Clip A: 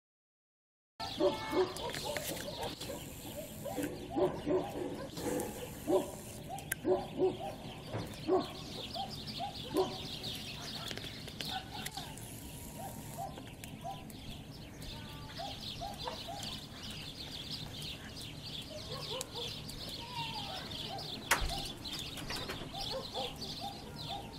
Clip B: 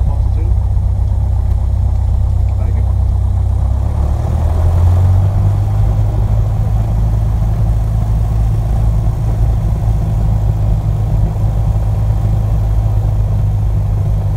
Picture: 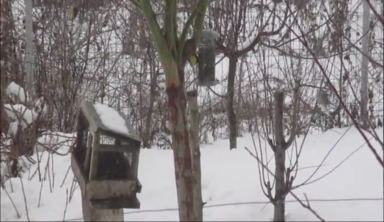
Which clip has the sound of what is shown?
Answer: A